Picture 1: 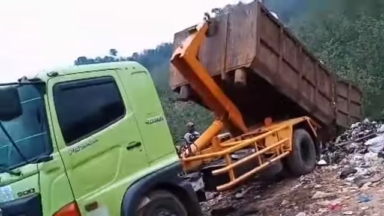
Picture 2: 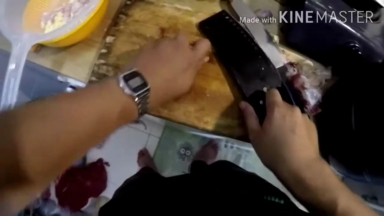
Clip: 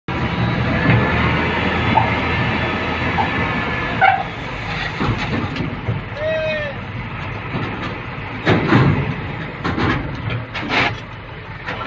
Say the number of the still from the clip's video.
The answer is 1